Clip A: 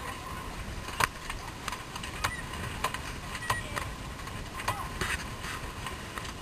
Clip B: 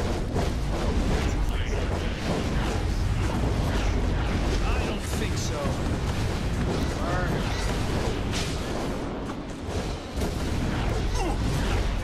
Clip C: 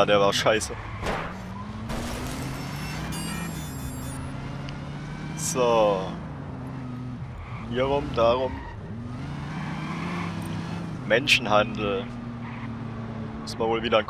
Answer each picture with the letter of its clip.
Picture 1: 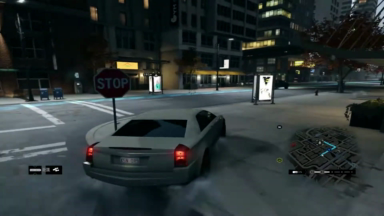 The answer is C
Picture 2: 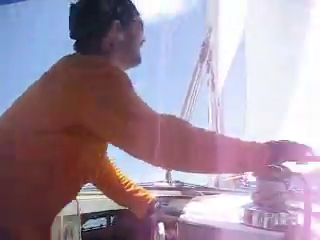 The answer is A